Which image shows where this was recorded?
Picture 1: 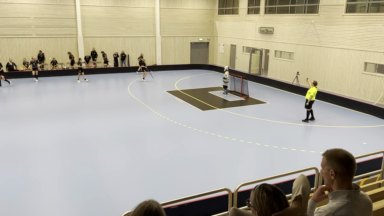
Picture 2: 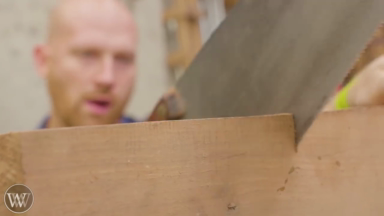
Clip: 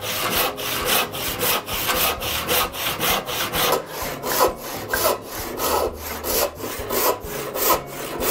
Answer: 2